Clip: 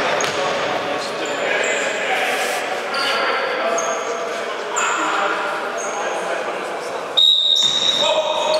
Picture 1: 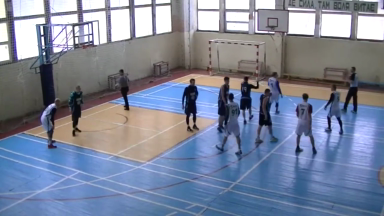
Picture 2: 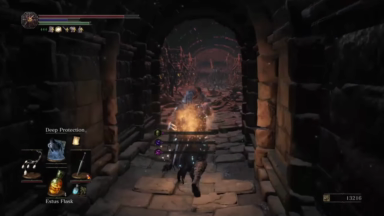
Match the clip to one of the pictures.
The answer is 1